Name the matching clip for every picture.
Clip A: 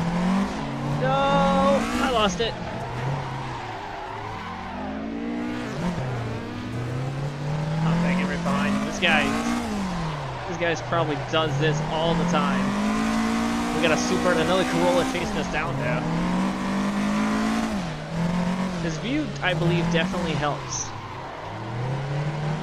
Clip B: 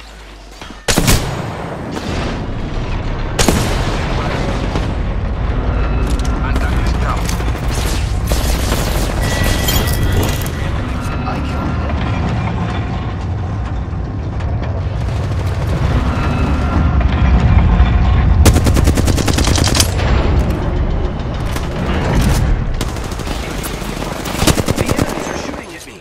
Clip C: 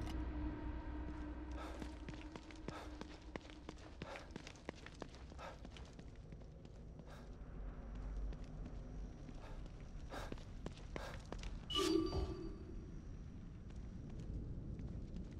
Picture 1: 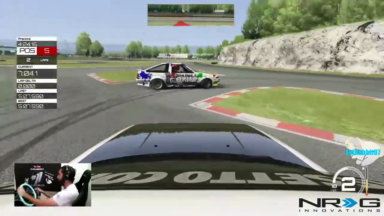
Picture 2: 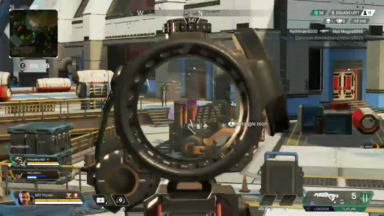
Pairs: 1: A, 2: B